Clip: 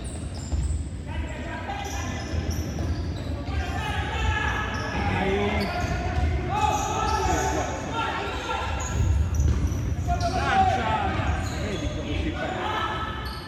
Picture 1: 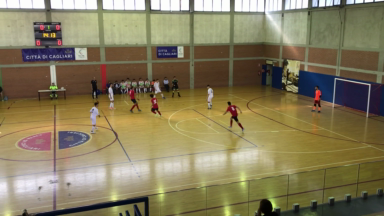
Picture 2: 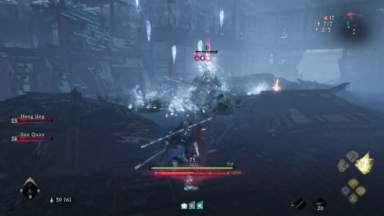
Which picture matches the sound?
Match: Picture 1